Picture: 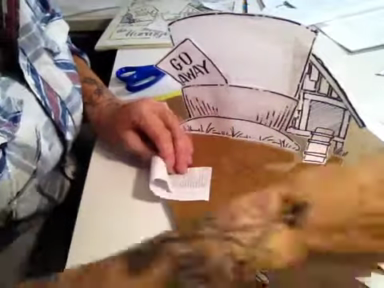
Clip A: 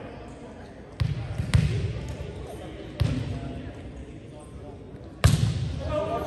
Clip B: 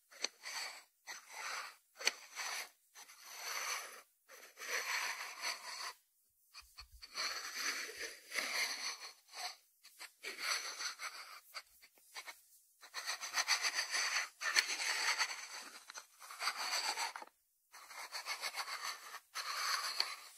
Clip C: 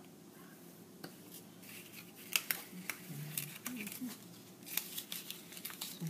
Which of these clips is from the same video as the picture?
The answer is C